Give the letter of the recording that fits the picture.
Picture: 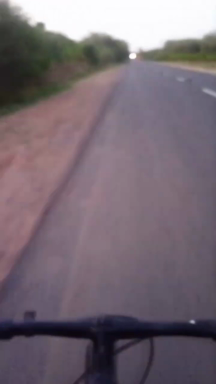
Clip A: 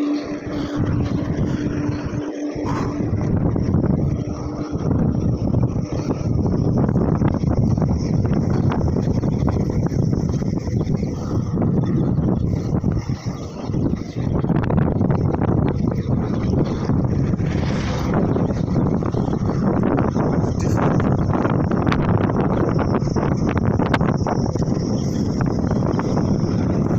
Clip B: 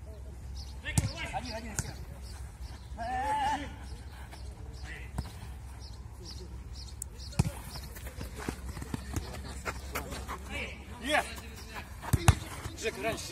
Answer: A